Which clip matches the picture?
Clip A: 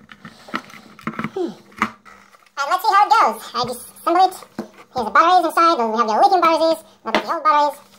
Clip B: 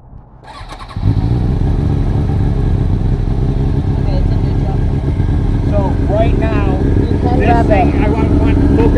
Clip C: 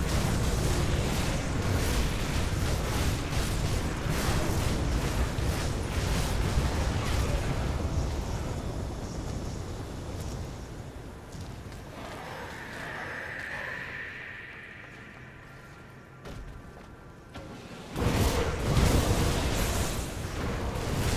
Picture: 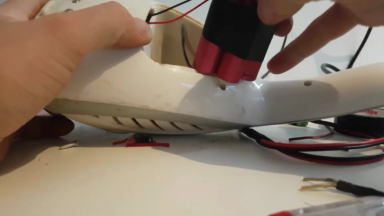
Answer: A